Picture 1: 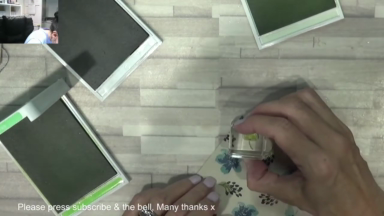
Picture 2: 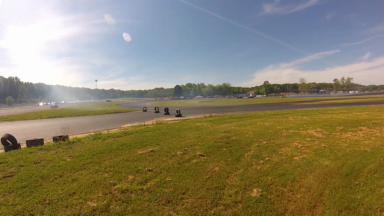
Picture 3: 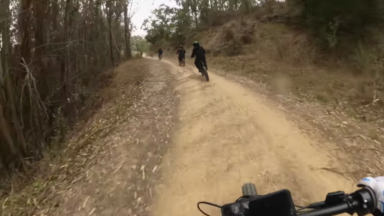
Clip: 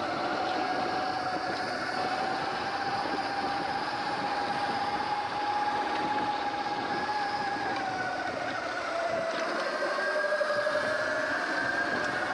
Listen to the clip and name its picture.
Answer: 3